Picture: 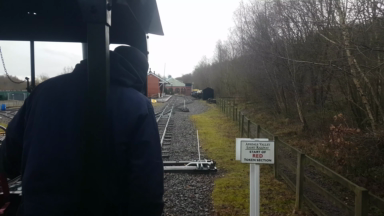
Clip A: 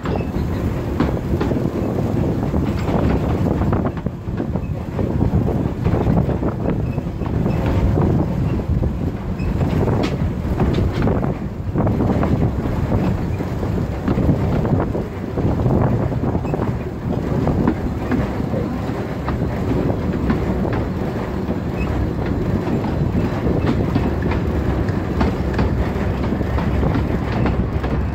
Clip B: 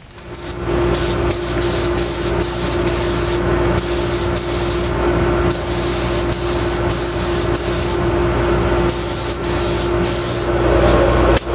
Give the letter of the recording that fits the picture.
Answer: A